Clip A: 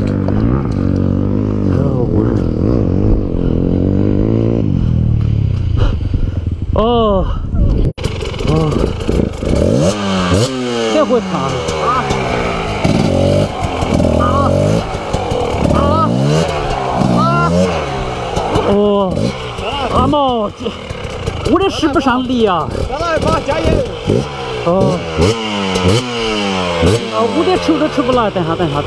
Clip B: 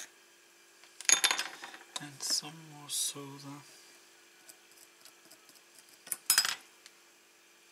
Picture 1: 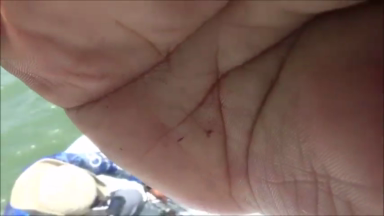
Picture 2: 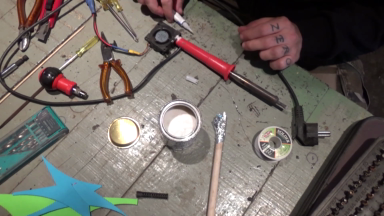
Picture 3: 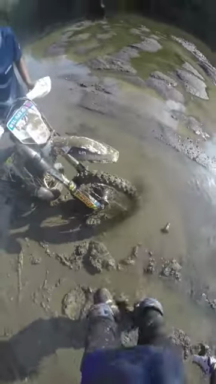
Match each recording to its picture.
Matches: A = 3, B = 2